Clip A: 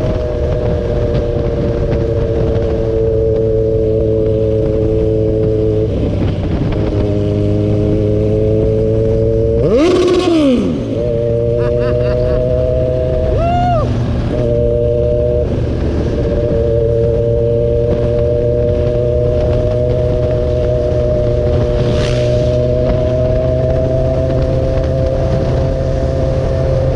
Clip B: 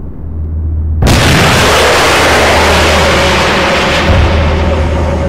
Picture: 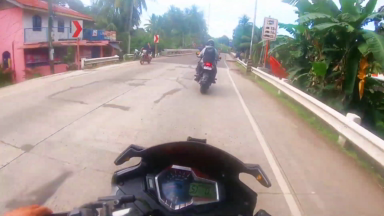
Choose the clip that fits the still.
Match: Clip A